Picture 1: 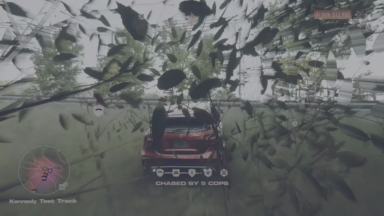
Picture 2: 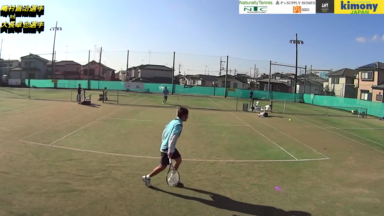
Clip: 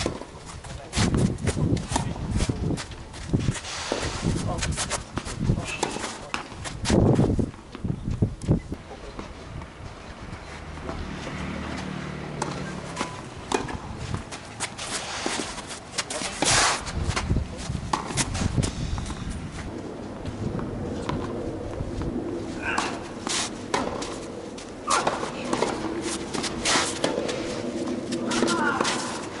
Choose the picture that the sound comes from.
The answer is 2